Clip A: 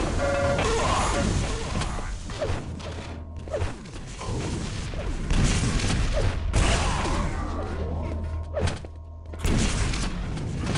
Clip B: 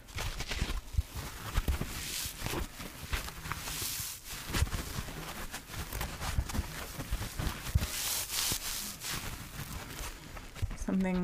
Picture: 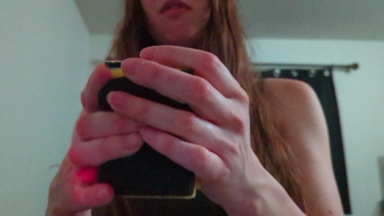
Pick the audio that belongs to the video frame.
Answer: B